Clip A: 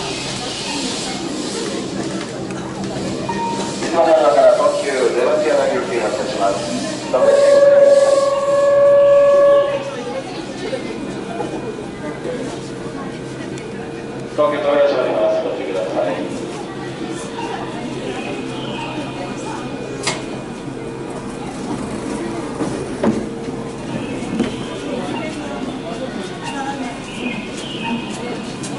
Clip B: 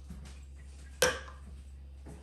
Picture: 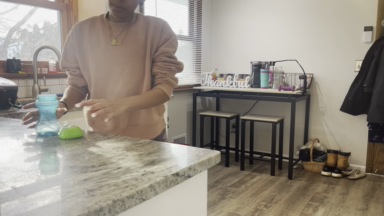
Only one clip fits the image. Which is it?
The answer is B